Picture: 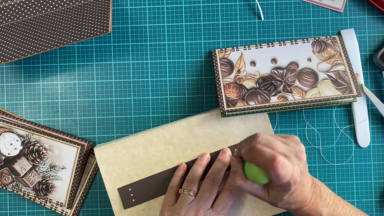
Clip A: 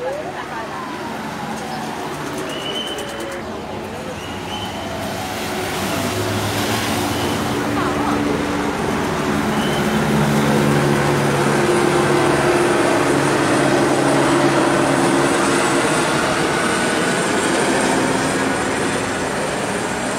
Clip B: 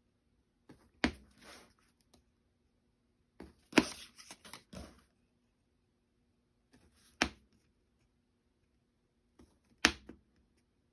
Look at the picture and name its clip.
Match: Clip B